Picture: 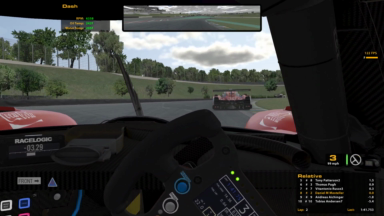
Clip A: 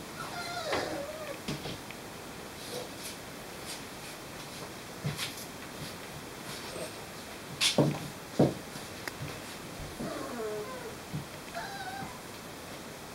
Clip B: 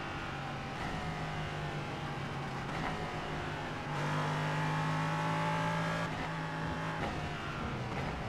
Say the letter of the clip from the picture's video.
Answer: B